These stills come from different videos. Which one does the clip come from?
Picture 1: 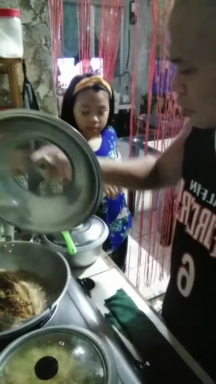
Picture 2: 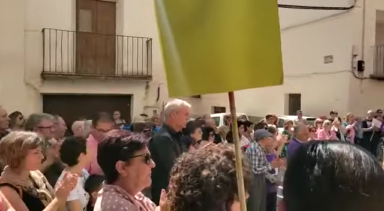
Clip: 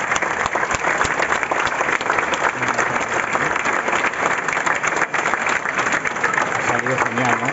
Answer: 2